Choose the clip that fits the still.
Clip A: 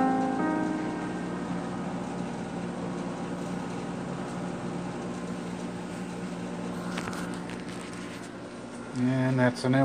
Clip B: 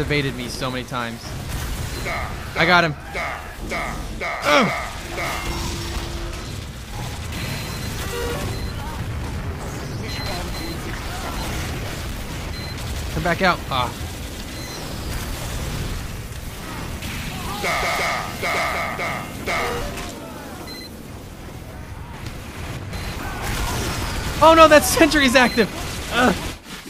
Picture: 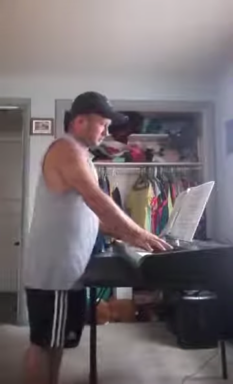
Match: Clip A